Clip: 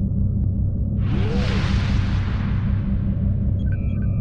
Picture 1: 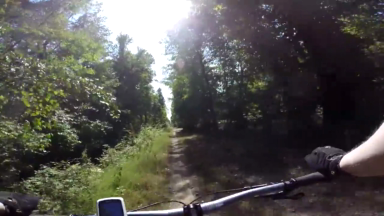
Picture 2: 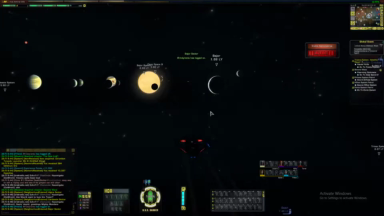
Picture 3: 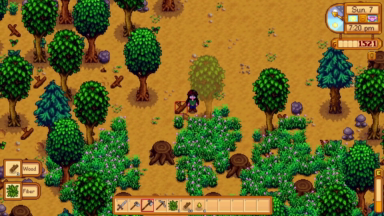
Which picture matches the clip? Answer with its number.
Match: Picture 2